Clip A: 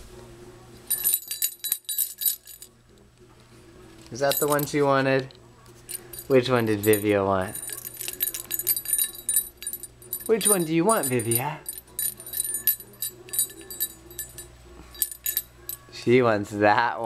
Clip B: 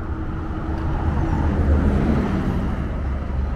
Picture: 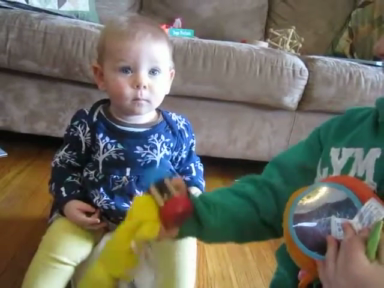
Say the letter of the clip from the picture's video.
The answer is A